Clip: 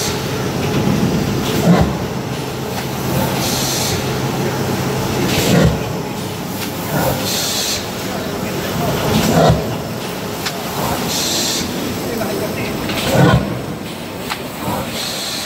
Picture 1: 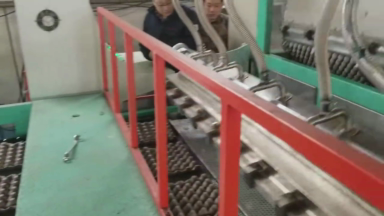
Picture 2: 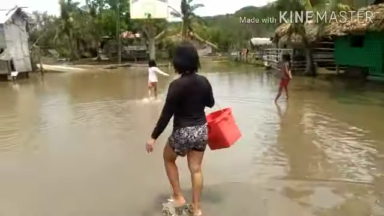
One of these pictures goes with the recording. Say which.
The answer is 1